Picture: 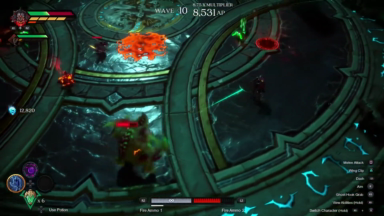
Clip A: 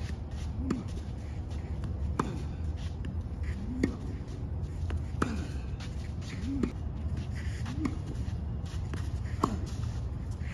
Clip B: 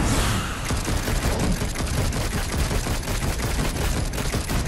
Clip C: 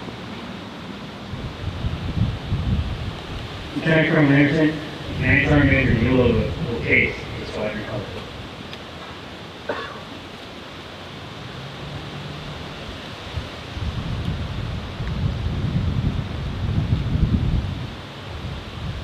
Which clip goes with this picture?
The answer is B